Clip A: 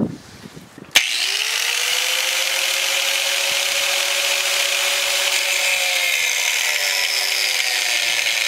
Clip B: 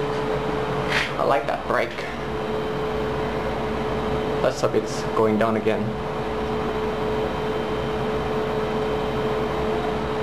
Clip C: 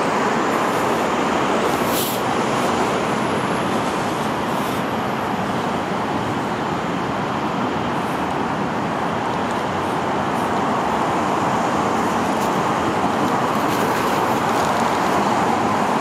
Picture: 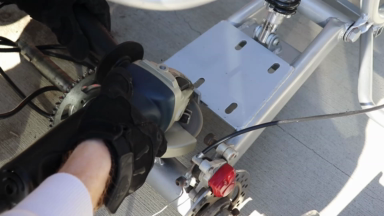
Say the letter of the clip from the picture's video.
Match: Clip A